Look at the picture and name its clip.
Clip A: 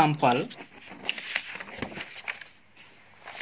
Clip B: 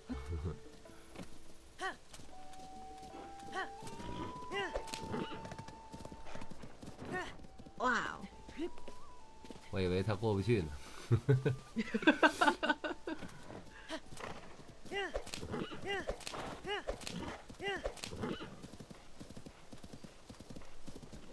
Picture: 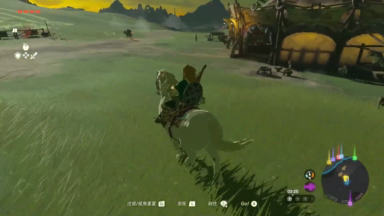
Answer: B